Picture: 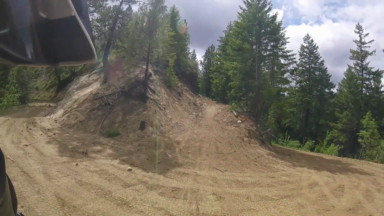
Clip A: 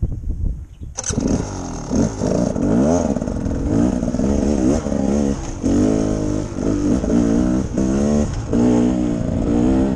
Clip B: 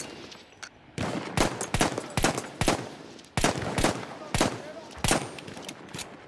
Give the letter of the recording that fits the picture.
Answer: A